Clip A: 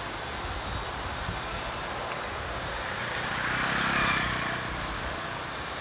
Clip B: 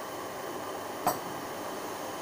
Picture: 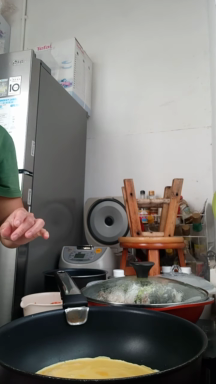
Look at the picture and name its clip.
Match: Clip B